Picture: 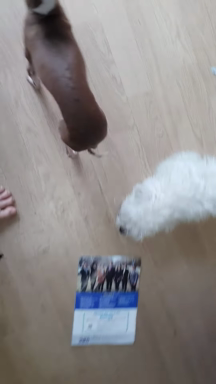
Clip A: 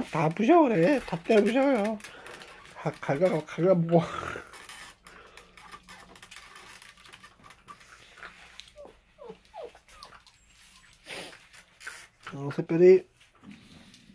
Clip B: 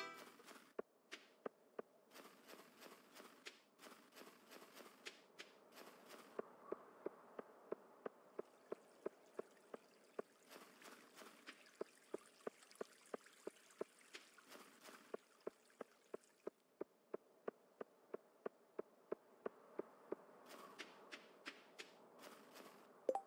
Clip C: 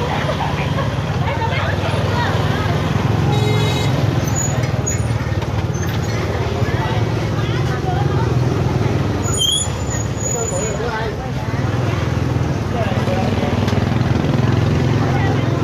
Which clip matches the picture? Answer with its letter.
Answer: A